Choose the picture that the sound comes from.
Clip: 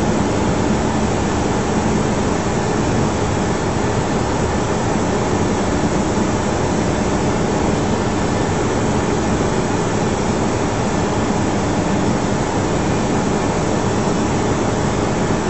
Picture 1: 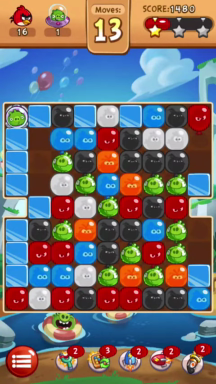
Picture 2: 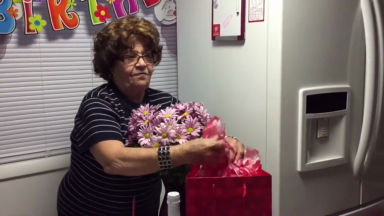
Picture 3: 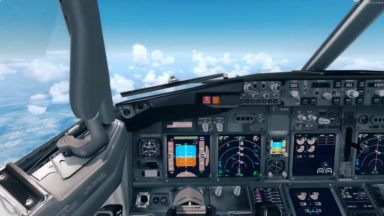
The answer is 3